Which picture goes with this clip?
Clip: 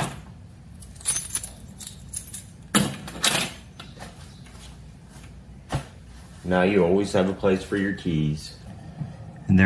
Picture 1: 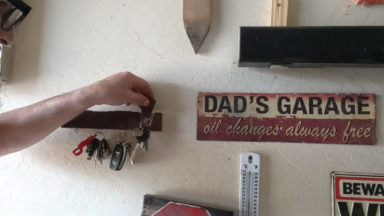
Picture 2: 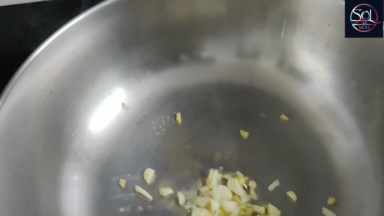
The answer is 1